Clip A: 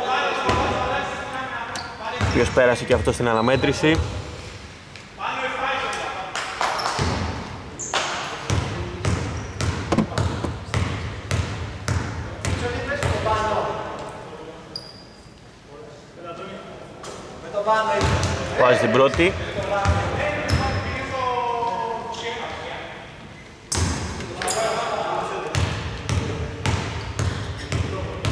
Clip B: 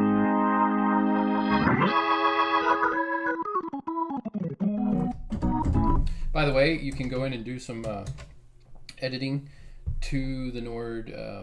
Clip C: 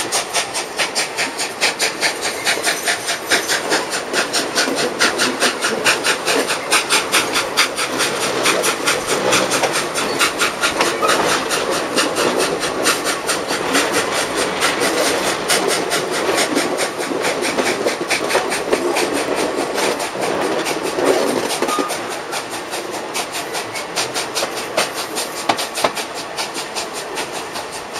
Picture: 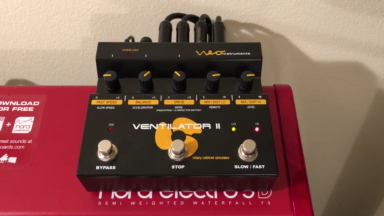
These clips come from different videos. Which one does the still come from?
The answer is B